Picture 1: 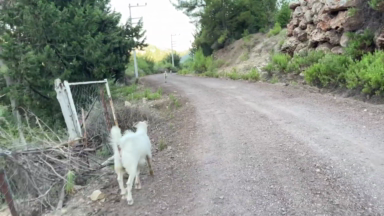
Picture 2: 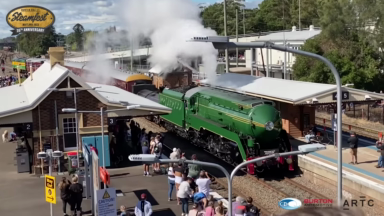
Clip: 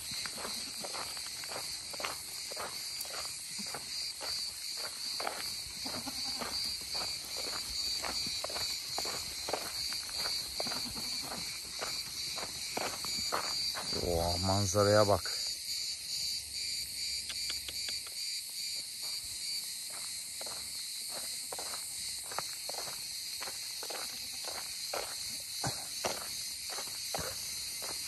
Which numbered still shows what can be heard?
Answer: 1